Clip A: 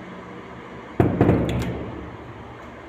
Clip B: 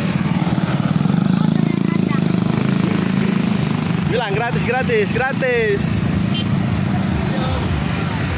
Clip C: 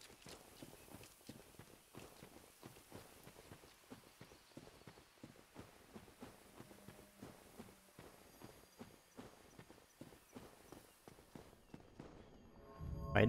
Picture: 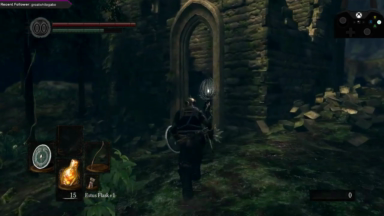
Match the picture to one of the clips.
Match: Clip C